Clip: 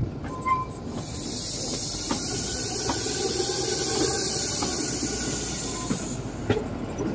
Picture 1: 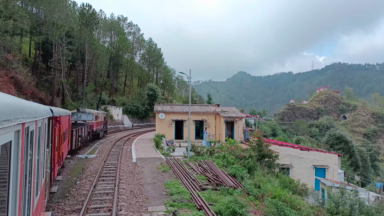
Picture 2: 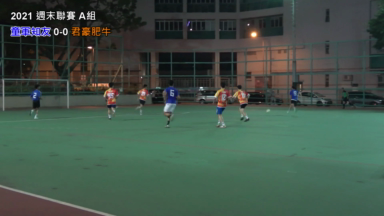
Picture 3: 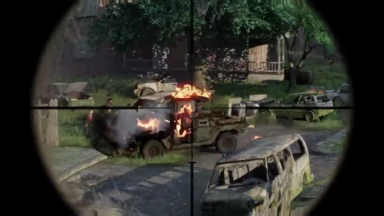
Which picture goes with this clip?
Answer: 1